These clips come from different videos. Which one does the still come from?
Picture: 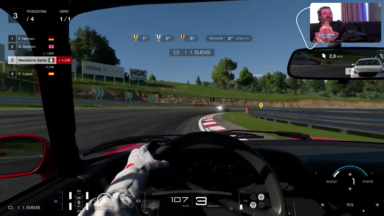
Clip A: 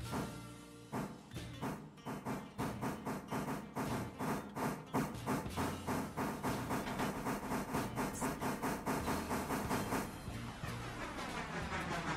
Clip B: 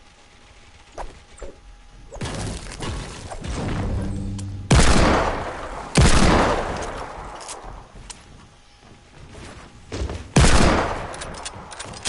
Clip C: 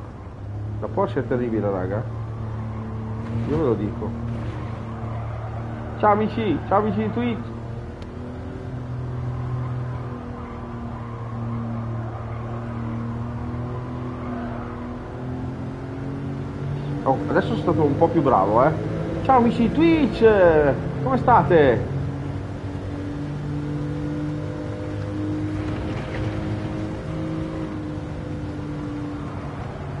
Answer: C